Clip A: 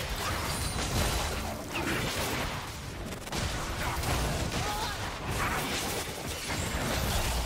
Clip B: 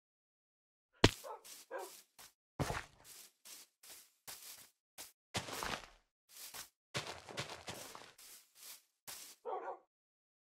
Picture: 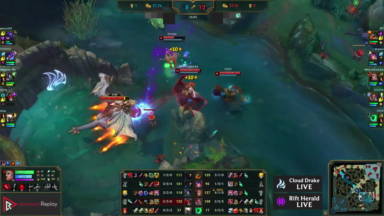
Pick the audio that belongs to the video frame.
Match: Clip A